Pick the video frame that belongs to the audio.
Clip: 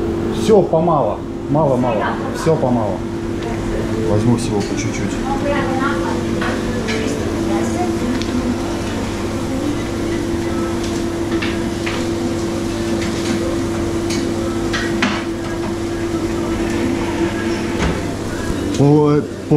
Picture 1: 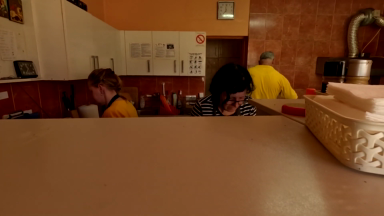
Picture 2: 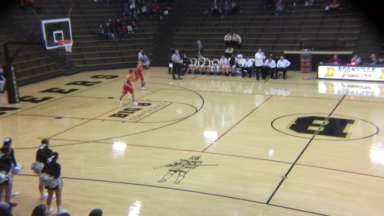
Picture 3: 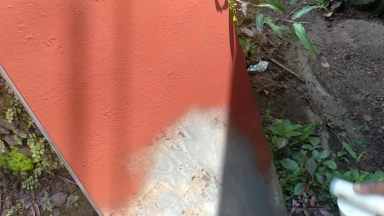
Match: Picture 1